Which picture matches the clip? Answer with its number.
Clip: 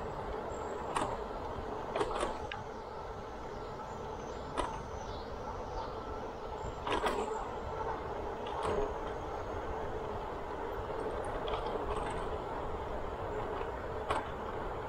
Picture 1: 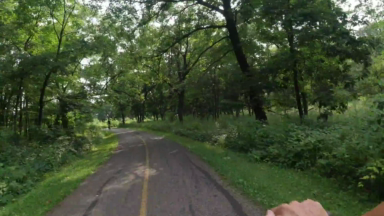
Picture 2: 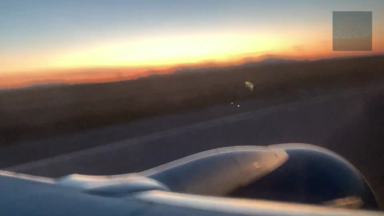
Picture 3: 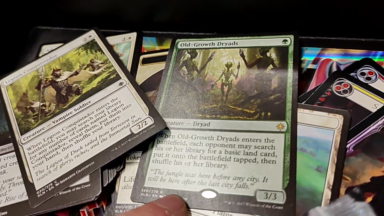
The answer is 1